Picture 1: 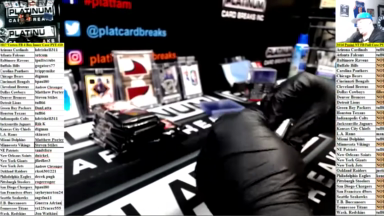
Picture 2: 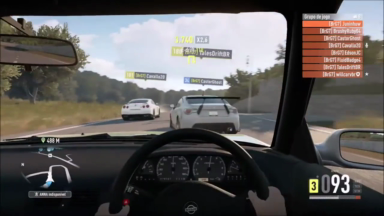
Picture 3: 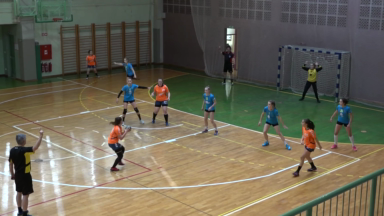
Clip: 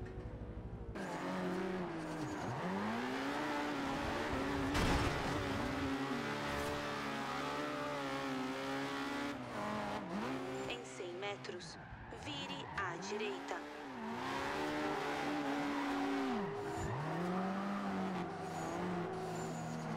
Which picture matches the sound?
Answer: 2